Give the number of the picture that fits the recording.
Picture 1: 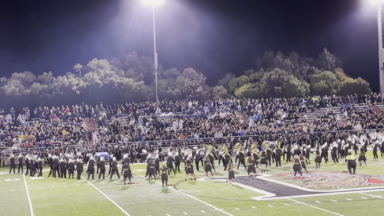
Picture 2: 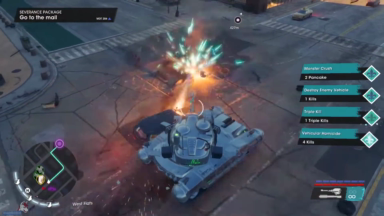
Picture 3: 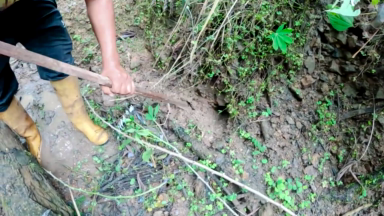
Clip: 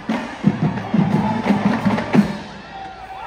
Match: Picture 1